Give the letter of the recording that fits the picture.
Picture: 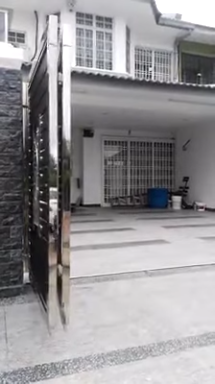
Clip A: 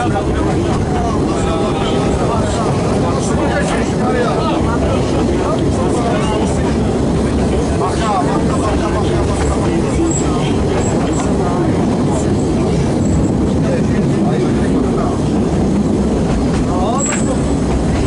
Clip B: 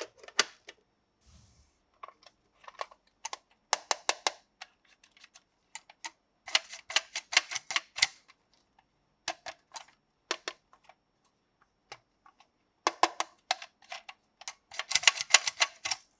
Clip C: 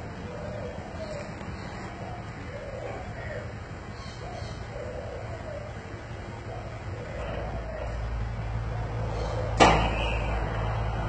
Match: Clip C